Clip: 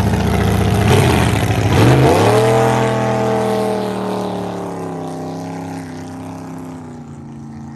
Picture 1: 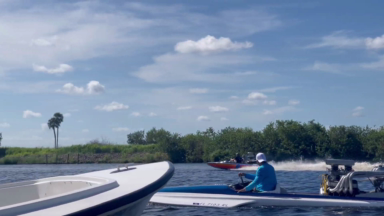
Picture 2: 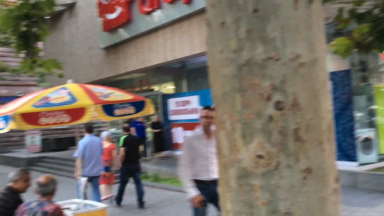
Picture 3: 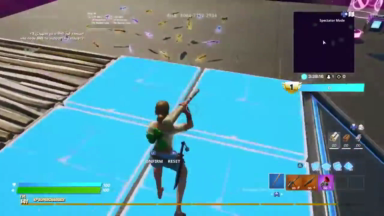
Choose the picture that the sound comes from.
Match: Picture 1